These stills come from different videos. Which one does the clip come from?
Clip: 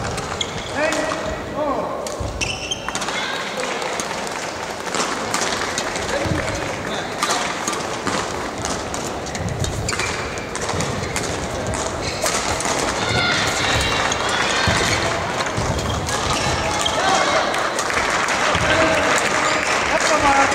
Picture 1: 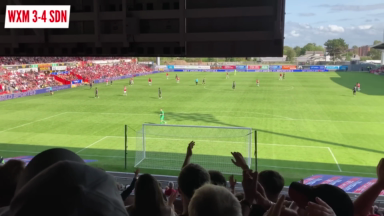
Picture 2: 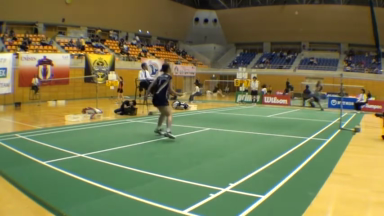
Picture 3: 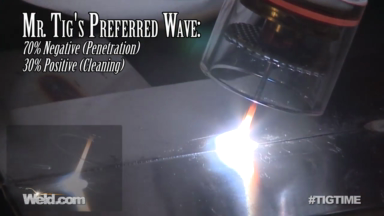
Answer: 2